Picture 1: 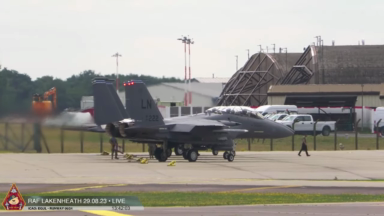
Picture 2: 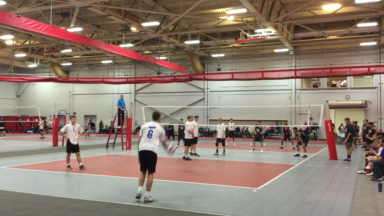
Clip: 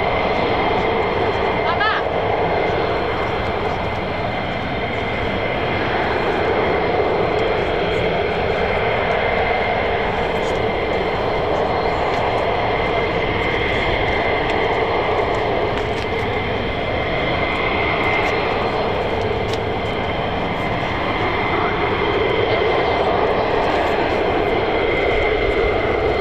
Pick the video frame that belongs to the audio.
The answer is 1